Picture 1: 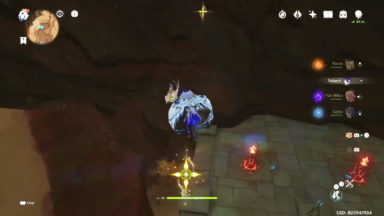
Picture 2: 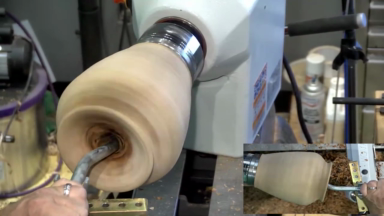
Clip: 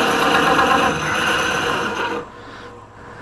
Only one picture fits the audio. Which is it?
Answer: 2